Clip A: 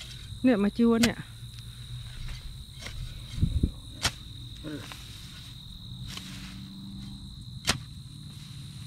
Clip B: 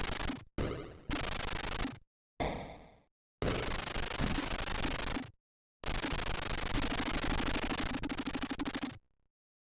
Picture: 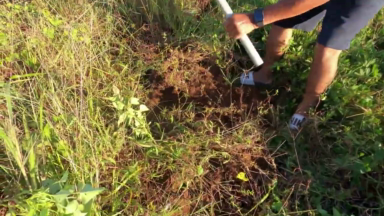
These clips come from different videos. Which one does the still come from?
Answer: A